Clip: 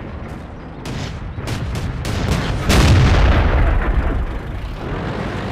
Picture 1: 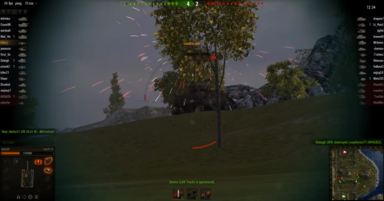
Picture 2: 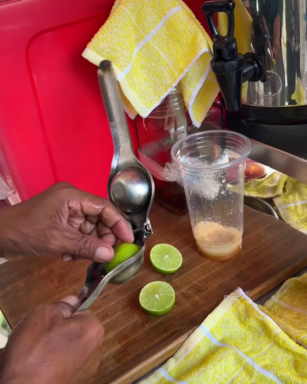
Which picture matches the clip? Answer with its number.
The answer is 1